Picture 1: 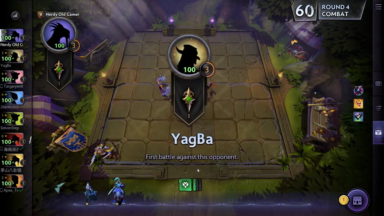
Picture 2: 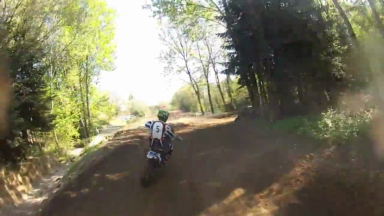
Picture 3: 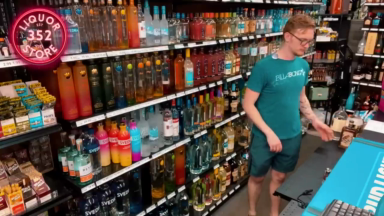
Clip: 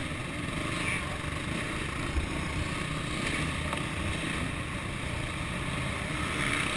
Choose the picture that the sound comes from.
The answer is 2